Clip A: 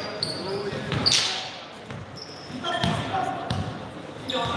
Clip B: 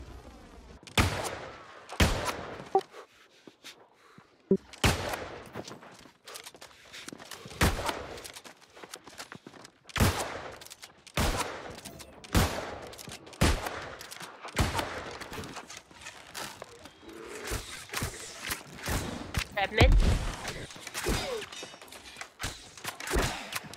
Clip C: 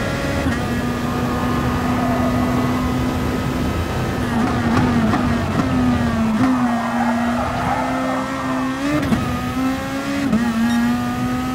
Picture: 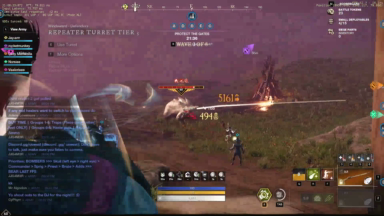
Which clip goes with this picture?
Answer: B